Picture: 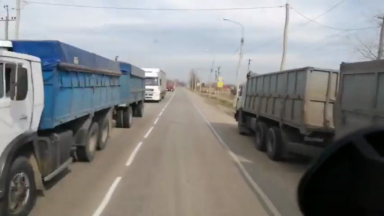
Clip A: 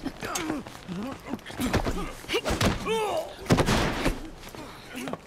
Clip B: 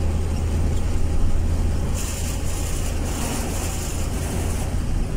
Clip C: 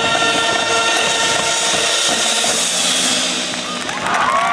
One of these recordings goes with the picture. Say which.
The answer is B